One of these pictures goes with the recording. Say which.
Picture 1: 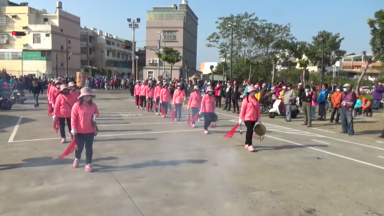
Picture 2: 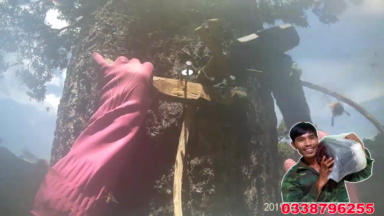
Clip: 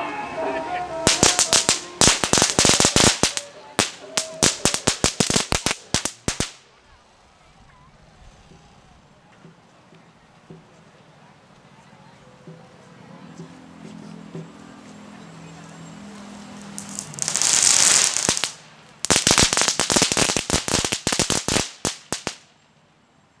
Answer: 1